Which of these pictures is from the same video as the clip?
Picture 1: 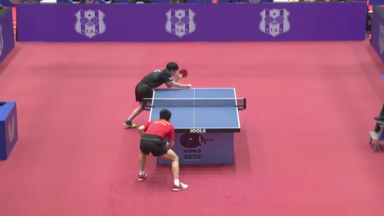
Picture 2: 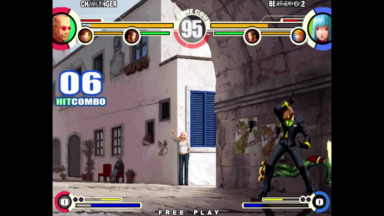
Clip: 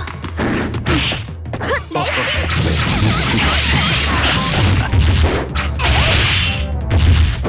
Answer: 2